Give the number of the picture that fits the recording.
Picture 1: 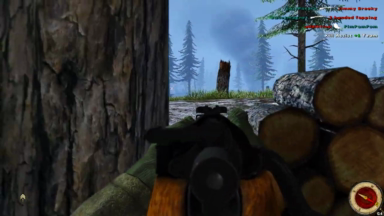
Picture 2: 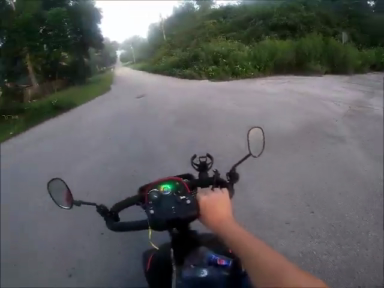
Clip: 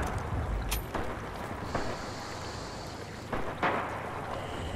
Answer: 1